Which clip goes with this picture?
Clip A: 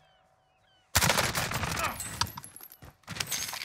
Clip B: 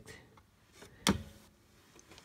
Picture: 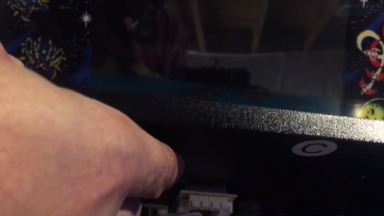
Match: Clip B